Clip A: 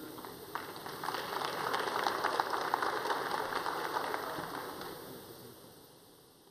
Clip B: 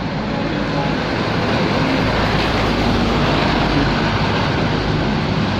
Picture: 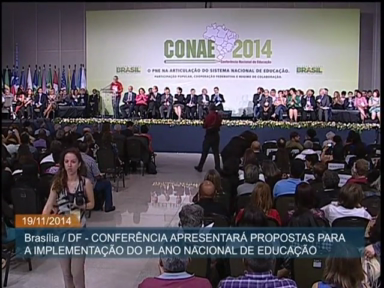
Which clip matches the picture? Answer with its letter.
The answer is A